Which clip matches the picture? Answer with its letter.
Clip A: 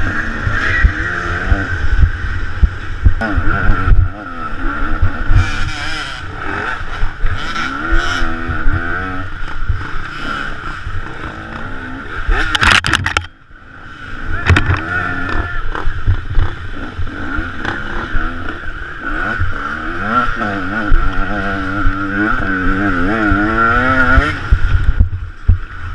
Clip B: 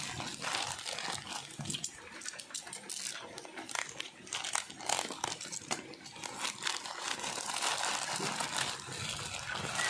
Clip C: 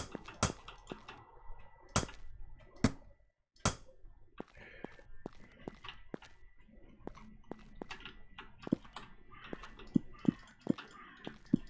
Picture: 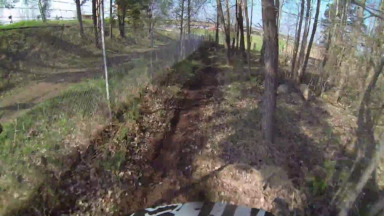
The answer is A